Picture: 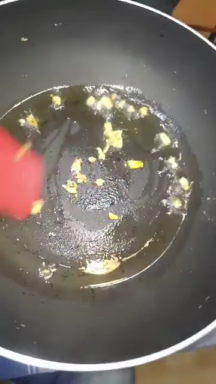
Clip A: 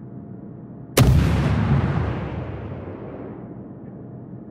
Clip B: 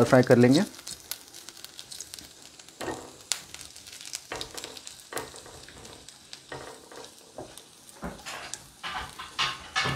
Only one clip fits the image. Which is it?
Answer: B